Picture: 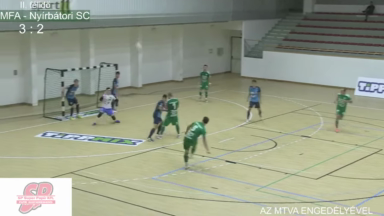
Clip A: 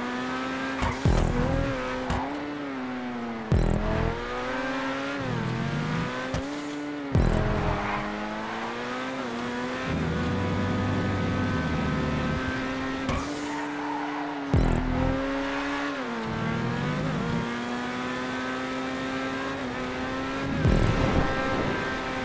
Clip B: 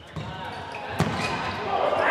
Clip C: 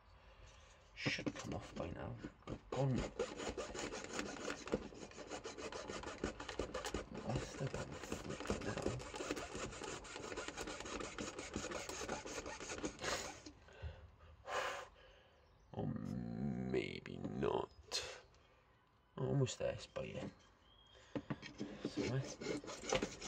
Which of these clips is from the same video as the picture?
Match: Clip B